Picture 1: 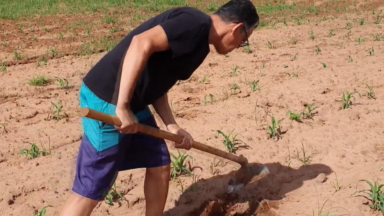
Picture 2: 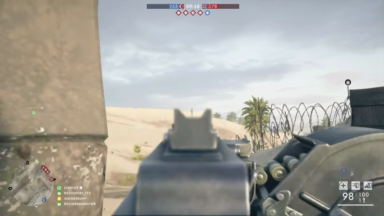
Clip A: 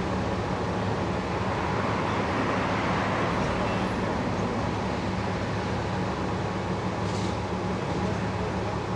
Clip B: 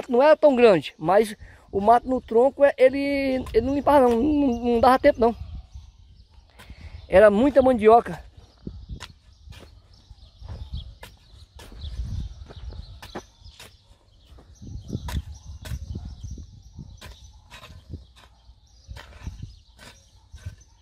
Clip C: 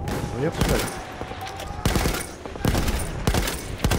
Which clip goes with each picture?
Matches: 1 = B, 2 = C